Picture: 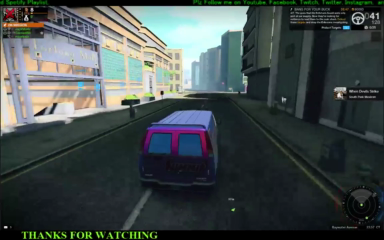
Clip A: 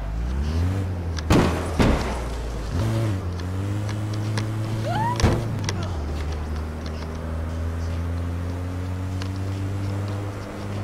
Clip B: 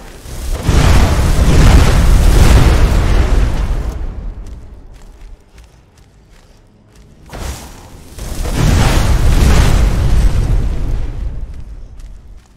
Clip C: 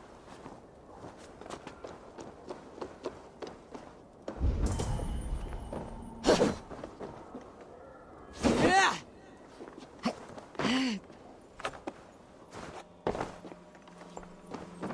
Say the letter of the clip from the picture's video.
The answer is A